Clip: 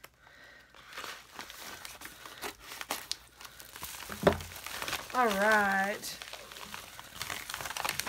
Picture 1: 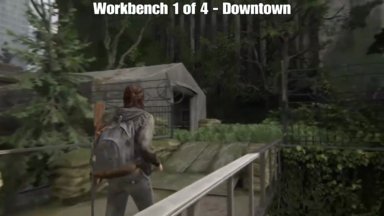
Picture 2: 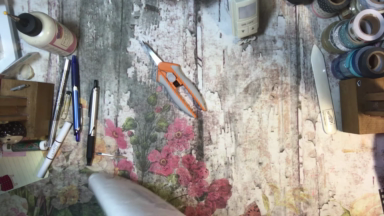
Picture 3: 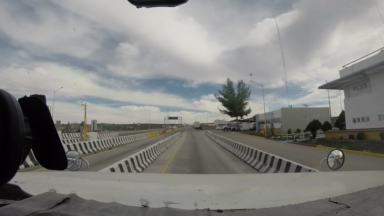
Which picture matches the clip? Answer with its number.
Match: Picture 2